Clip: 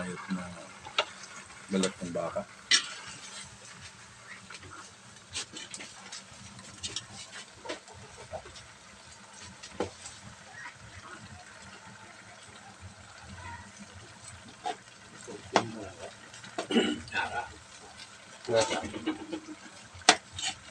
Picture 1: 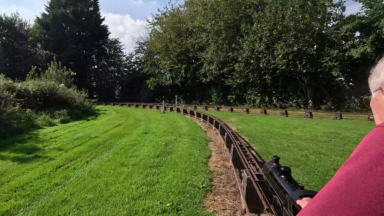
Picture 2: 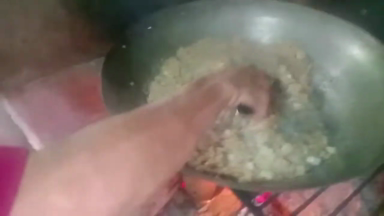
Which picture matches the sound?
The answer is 2